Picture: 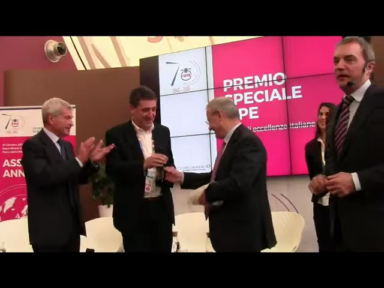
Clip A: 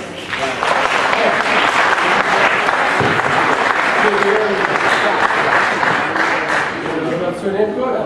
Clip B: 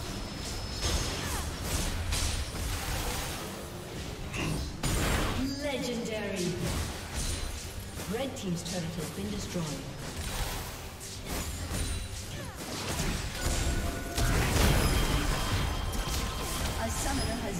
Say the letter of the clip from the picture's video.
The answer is A